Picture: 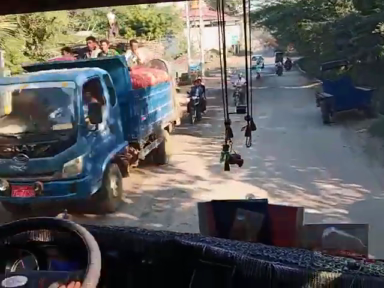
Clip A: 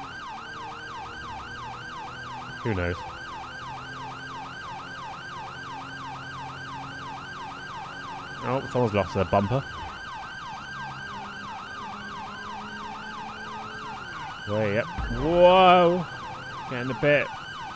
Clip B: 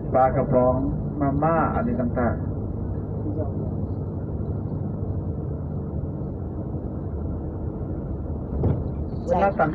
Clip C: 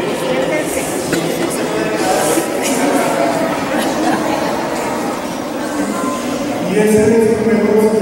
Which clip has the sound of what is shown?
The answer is B